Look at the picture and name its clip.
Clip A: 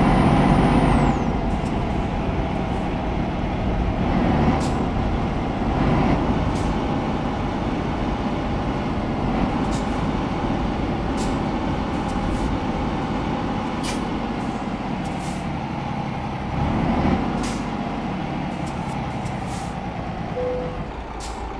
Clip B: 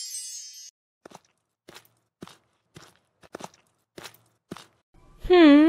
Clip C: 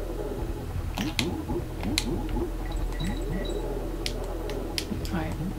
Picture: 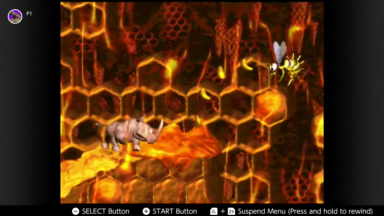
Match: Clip C